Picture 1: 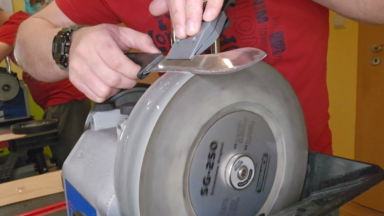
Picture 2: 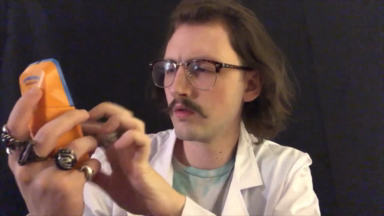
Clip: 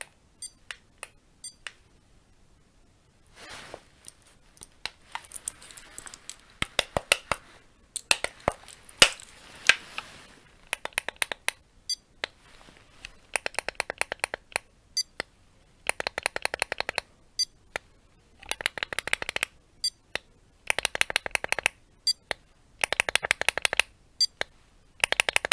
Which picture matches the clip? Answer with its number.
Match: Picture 2